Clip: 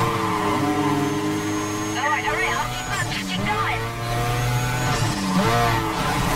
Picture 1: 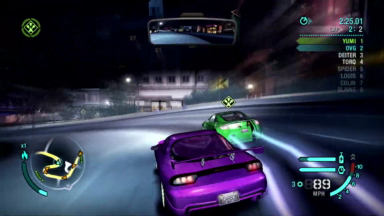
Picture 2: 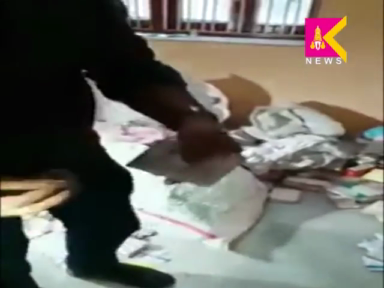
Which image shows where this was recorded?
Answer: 1